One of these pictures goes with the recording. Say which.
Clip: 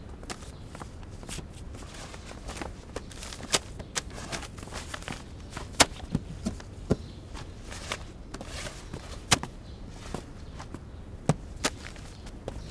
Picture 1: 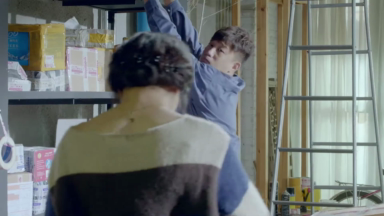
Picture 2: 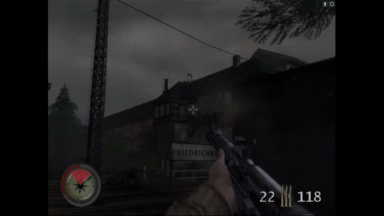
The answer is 1